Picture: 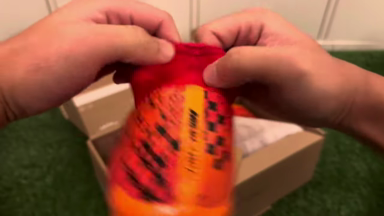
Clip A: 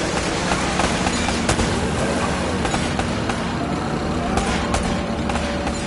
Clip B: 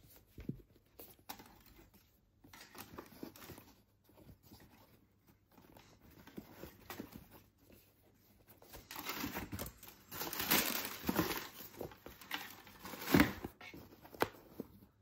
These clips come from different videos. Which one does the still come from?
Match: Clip B